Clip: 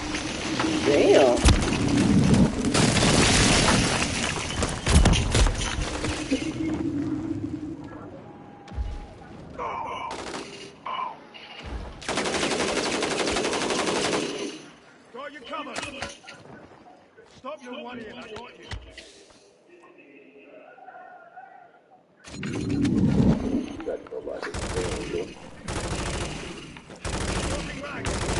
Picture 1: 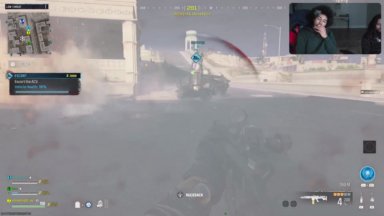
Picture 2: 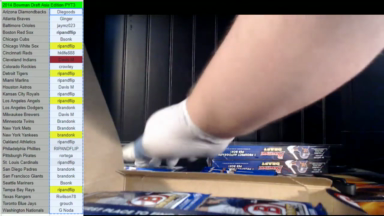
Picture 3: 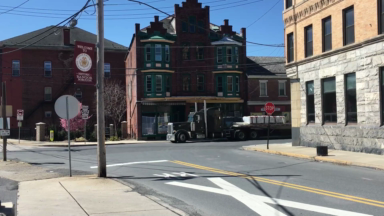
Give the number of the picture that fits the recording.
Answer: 1